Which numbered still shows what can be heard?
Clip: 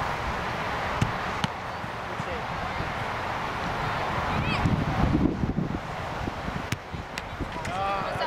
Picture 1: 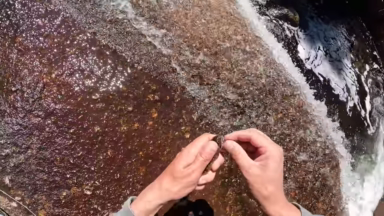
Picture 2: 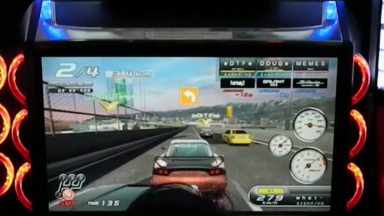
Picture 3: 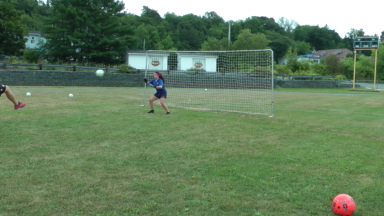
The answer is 3